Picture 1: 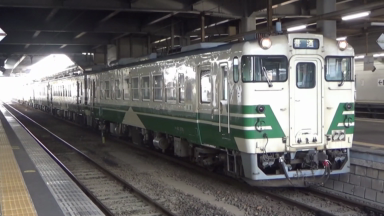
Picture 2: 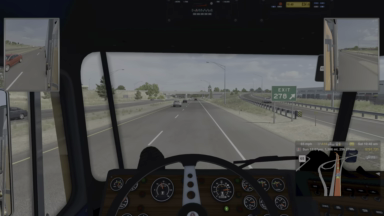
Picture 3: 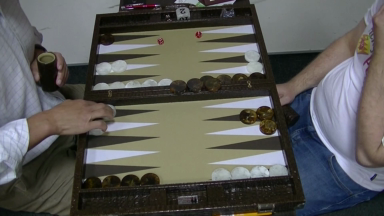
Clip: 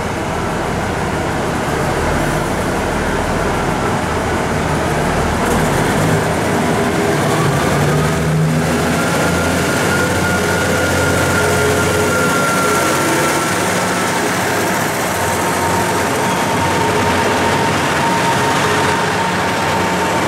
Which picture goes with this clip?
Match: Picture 1